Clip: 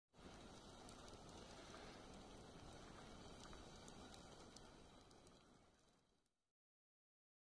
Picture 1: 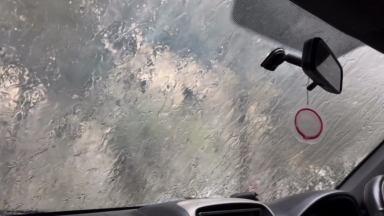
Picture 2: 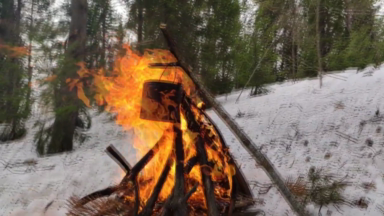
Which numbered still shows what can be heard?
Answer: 2